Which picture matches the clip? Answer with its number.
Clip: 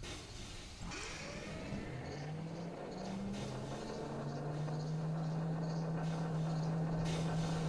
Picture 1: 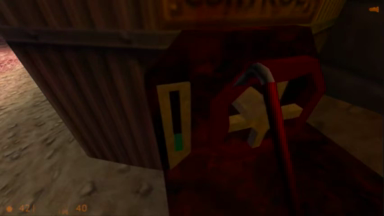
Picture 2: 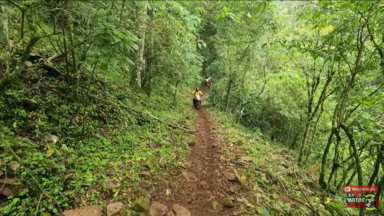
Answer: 1